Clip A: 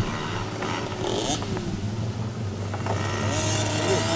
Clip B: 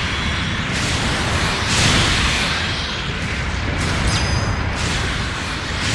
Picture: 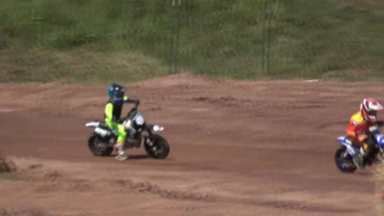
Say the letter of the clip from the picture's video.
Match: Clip A